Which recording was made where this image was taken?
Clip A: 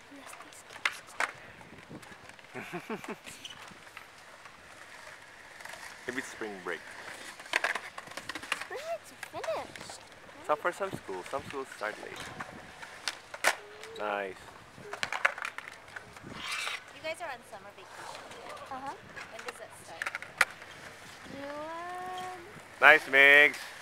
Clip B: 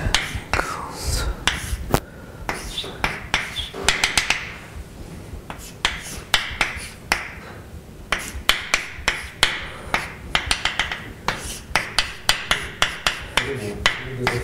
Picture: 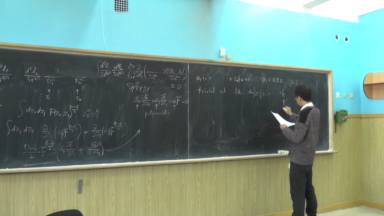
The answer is B